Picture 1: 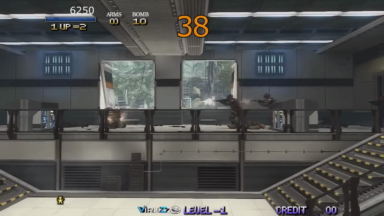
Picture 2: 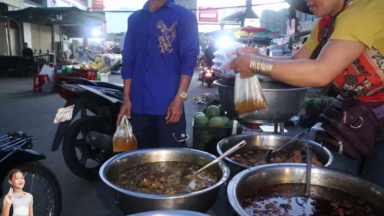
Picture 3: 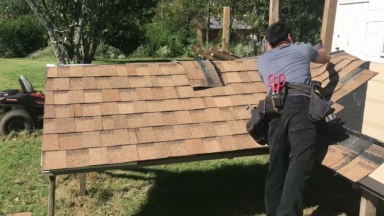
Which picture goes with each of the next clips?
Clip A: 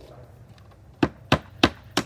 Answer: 3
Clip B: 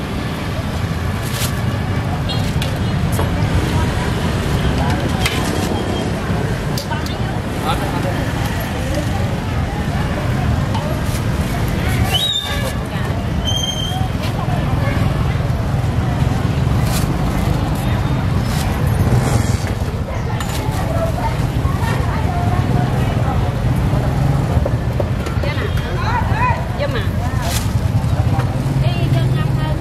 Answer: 2